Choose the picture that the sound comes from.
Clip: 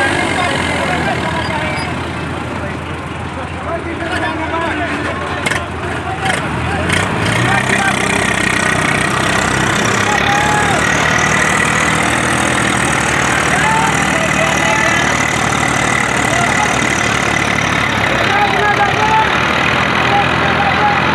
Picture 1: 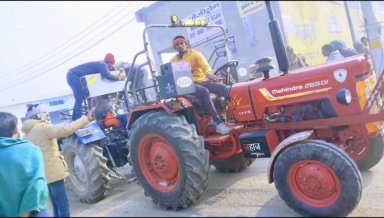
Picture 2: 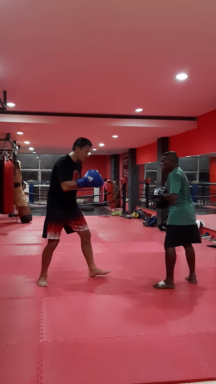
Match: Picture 1